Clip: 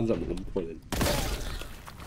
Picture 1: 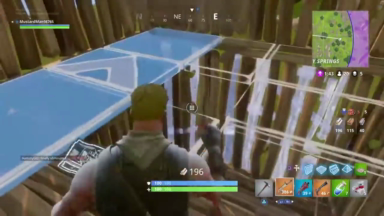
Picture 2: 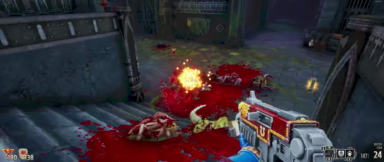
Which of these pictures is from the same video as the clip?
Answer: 2